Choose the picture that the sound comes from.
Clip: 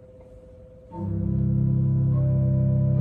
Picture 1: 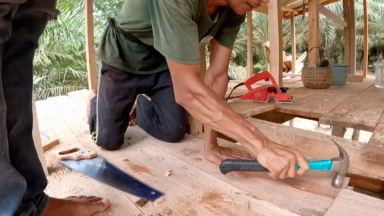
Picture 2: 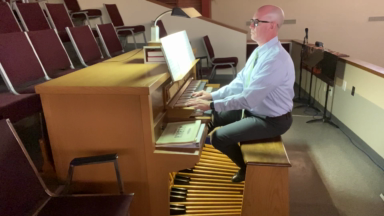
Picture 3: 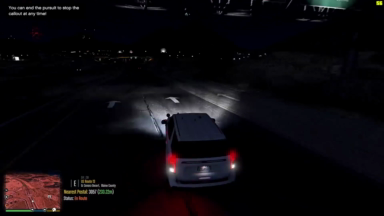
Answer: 2